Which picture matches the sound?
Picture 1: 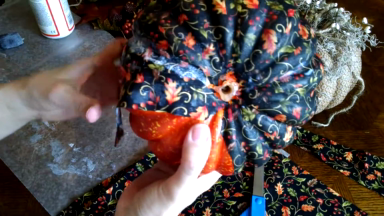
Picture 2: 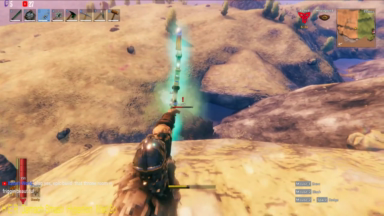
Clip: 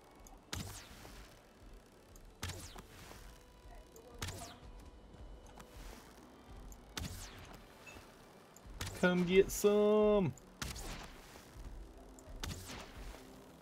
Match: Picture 2